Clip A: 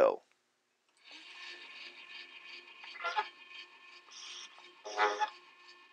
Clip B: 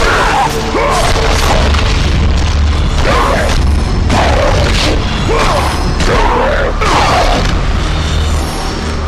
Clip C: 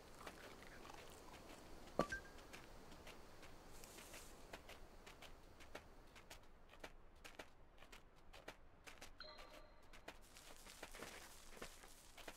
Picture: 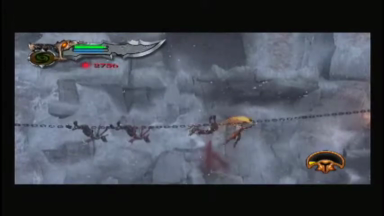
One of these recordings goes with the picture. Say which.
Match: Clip B